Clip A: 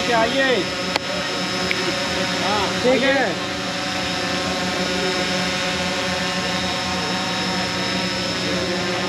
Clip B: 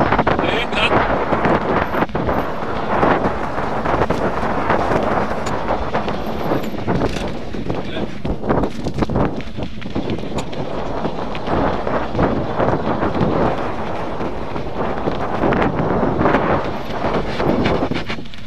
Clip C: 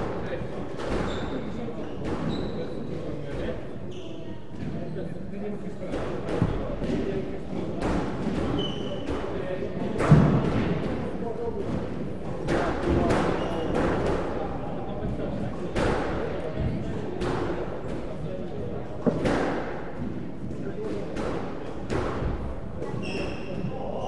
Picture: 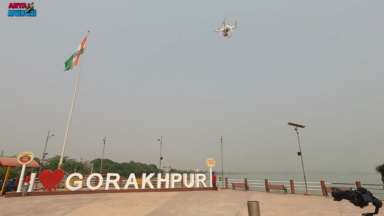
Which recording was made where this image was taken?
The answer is A